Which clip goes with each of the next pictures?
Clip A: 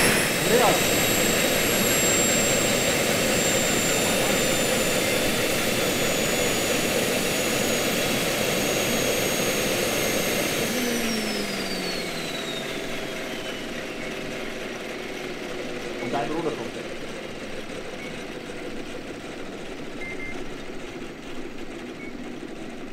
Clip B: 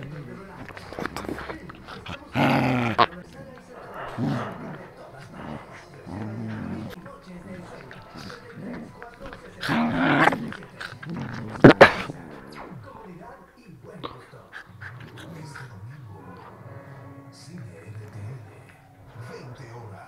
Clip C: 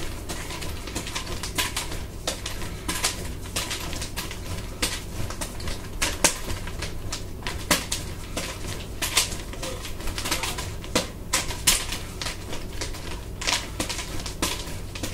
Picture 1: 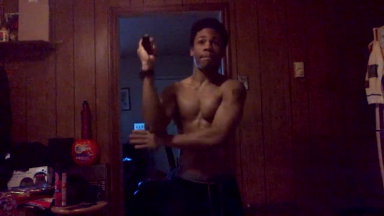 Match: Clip C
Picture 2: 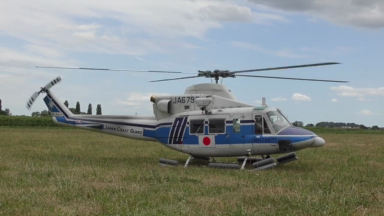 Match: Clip A